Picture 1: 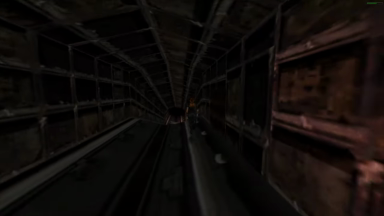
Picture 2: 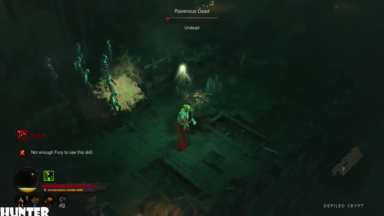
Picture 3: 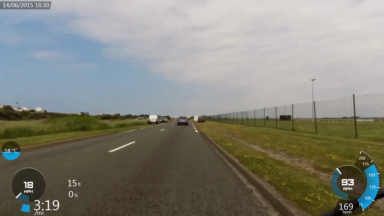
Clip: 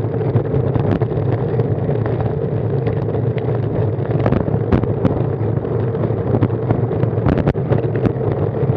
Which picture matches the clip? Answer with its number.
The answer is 3